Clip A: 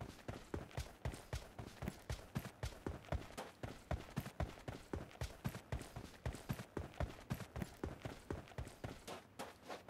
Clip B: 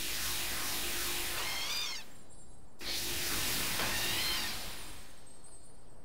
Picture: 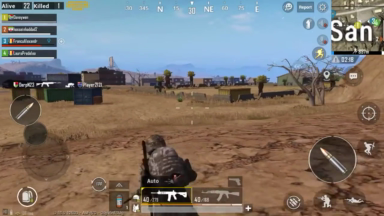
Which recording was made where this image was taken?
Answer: A